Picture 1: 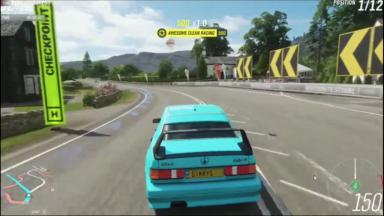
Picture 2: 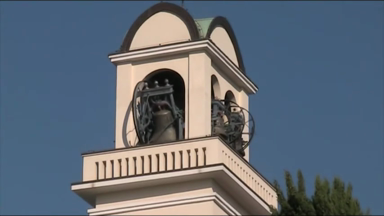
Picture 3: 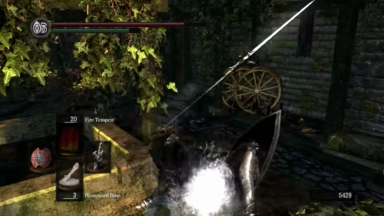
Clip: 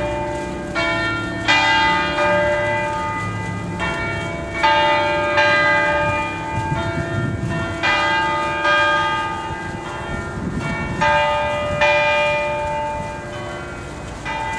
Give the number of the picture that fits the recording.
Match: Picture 2